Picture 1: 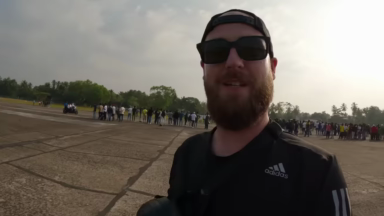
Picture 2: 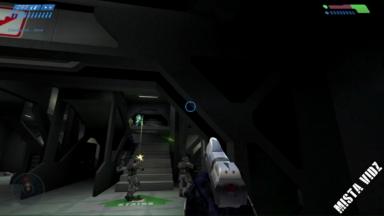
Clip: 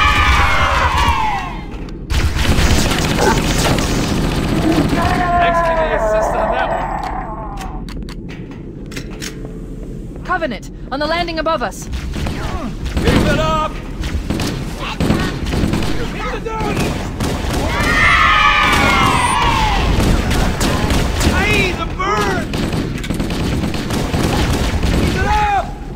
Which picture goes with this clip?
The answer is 2